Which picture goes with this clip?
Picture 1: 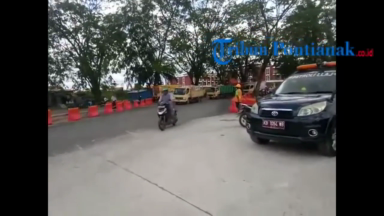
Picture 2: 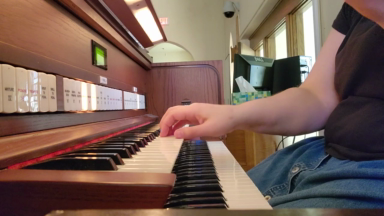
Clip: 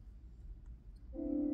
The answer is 2